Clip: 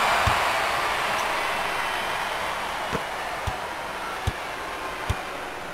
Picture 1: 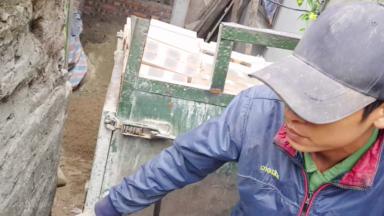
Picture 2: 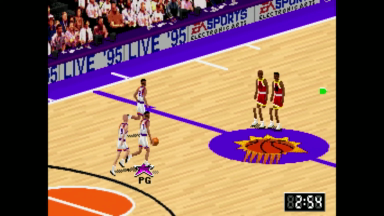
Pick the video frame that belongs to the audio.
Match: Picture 2